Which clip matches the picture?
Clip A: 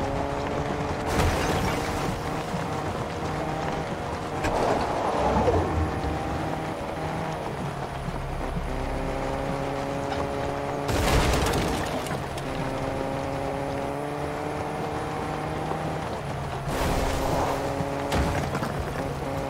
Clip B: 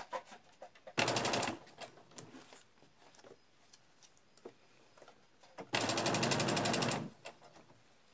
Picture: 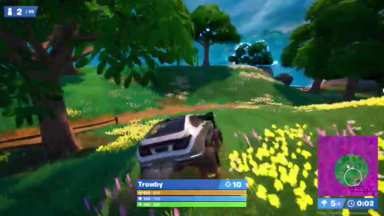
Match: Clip A